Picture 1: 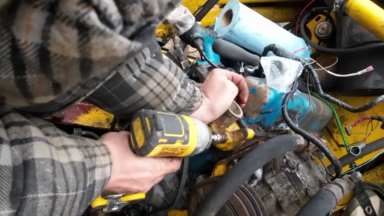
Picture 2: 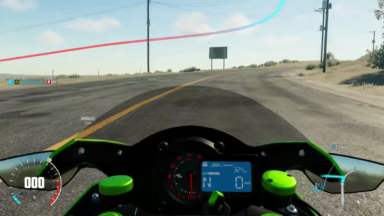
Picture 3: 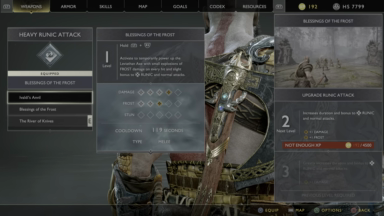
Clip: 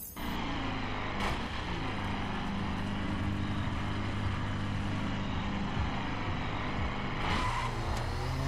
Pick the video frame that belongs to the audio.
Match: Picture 2